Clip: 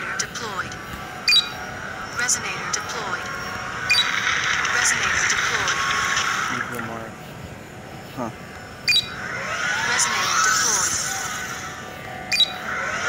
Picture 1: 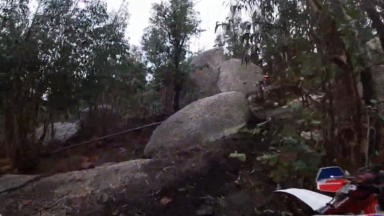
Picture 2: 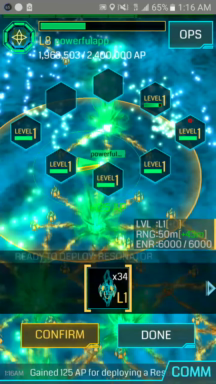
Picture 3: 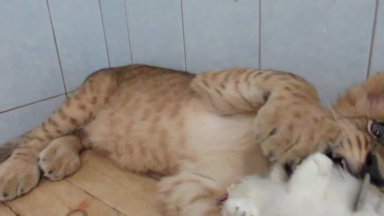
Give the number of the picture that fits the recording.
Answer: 2